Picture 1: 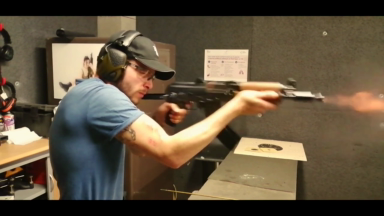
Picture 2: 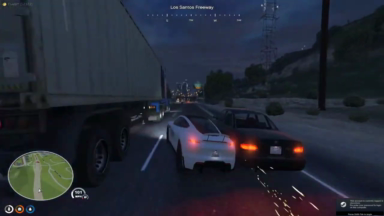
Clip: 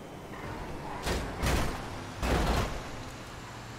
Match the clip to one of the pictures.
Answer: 2